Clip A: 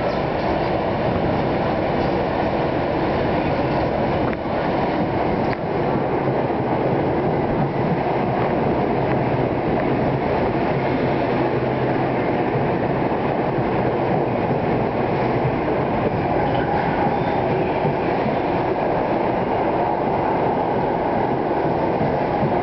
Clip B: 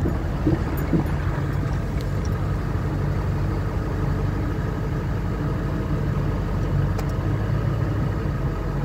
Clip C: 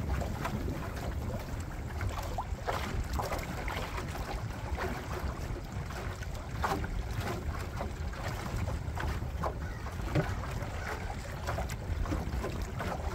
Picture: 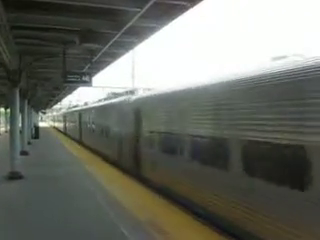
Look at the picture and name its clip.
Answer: A